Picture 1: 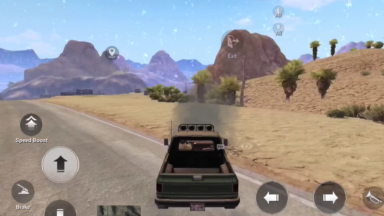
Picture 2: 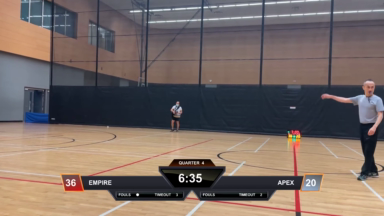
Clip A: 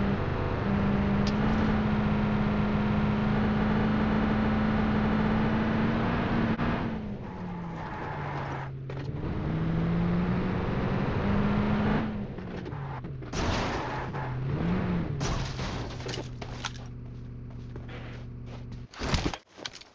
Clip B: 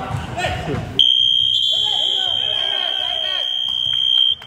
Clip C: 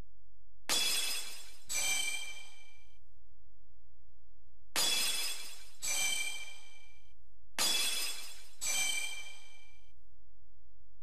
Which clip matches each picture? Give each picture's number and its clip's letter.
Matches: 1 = A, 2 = B